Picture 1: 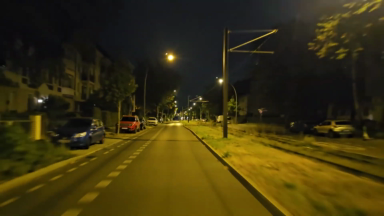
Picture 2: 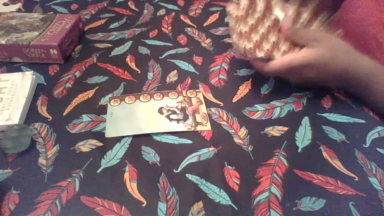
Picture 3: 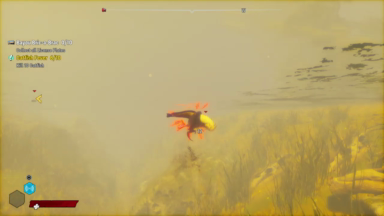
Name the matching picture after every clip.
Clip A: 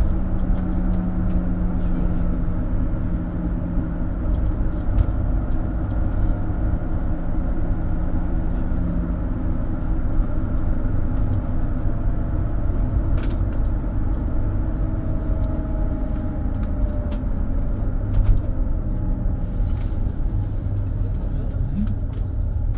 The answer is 1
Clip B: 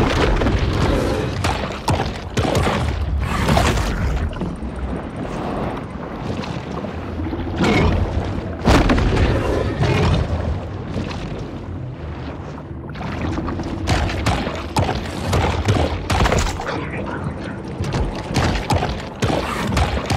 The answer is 3